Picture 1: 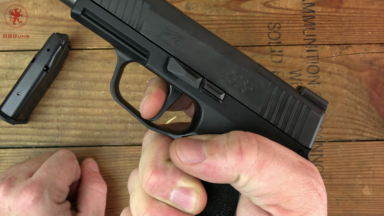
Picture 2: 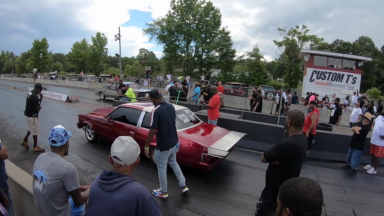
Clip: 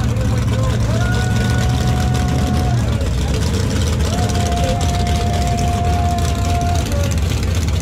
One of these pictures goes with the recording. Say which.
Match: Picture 2